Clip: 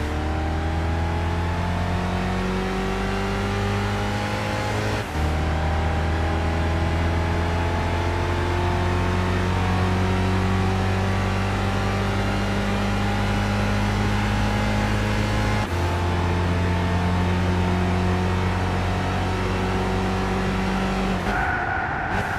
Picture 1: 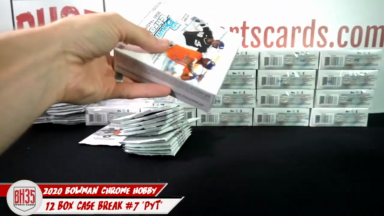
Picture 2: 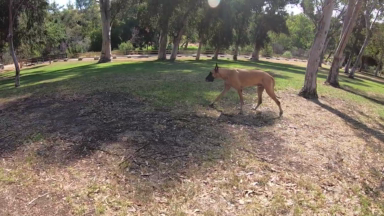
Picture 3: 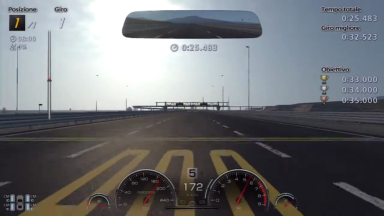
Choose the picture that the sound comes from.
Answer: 3